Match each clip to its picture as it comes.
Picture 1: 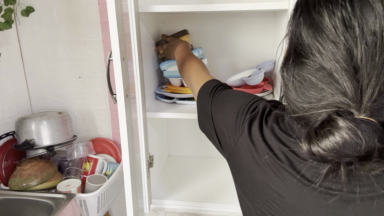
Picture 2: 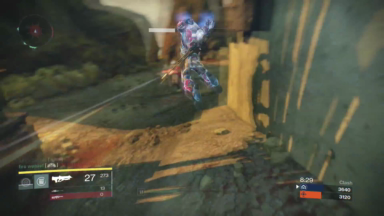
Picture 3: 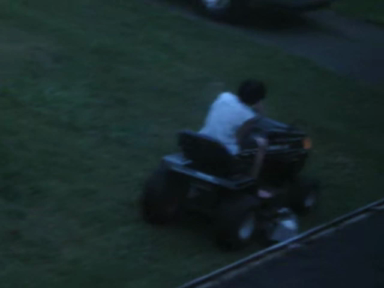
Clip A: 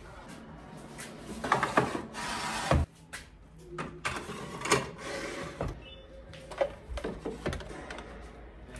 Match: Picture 1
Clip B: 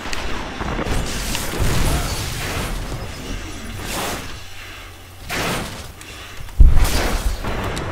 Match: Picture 2